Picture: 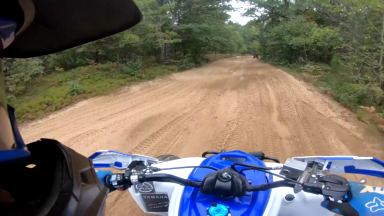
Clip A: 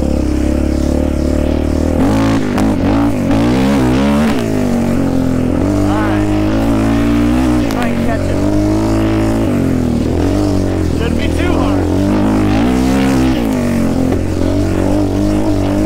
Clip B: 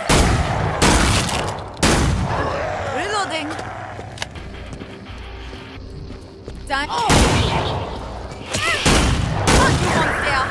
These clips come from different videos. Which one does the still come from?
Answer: A